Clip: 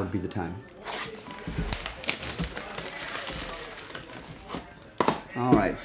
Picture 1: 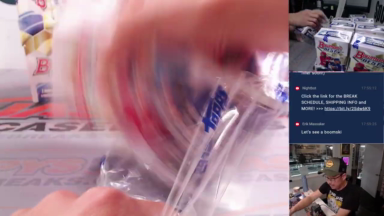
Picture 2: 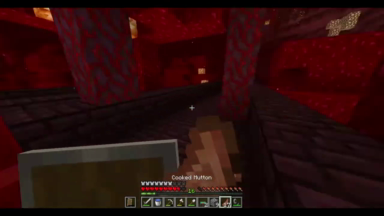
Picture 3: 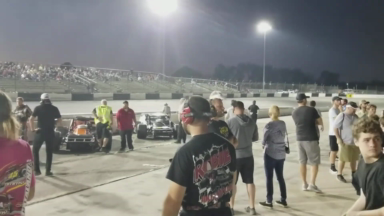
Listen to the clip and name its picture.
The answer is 1